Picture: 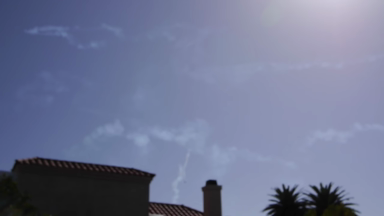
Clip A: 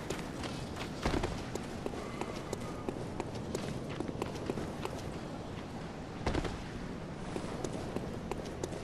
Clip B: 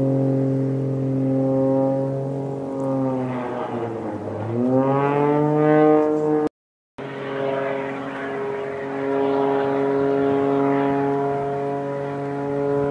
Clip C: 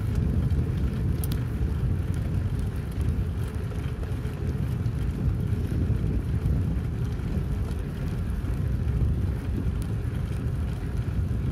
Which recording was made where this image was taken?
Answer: B